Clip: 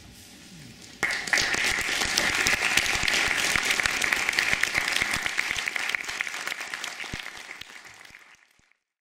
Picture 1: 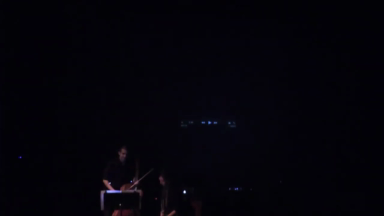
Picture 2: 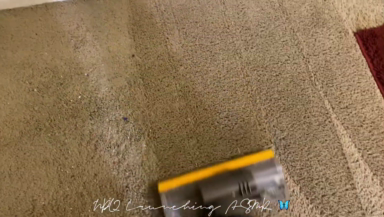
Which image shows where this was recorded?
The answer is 1